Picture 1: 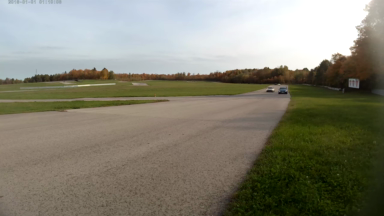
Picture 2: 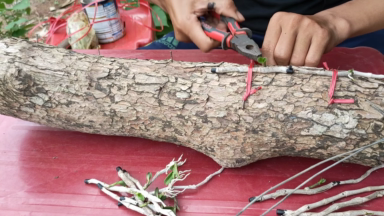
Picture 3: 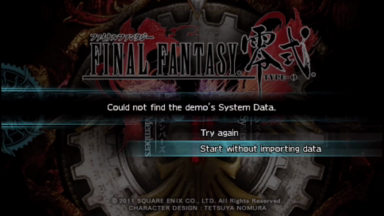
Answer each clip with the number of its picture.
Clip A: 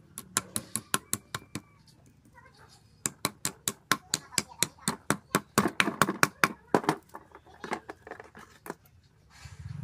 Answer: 2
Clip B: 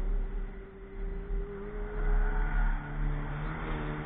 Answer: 1